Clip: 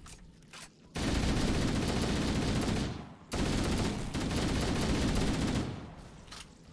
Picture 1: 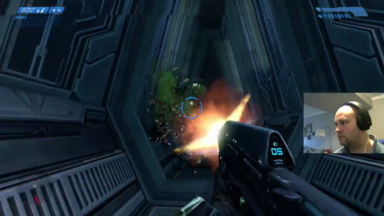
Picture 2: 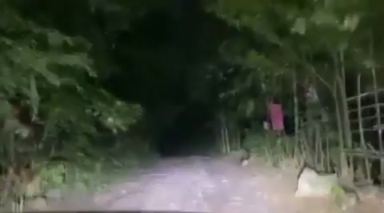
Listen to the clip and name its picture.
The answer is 1